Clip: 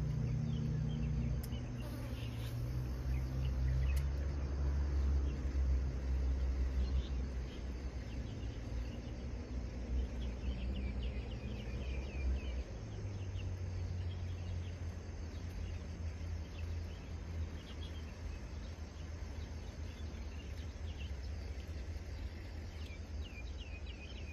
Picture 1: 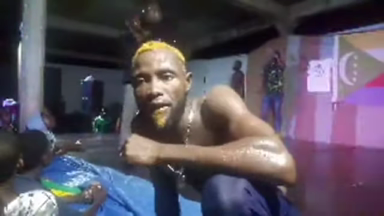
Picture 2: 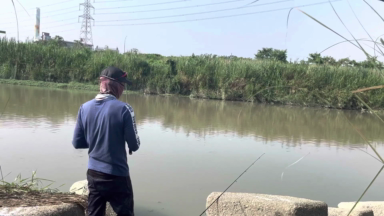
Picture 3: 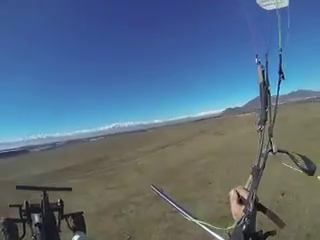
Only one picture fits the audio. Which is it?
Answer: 2